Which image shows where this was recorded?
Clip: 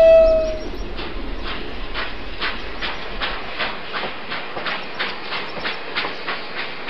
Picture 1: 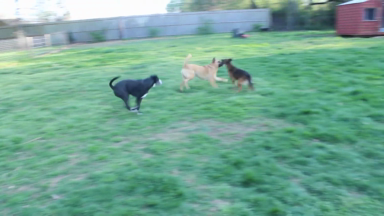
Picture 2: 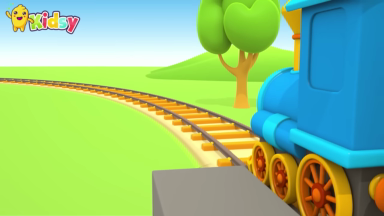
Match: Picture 2